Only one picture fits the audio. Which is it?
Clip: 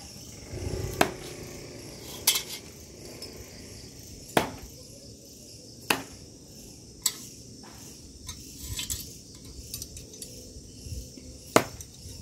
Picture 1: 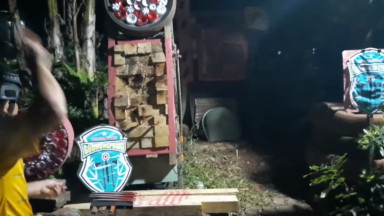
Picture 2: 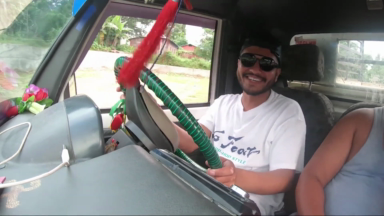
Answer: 1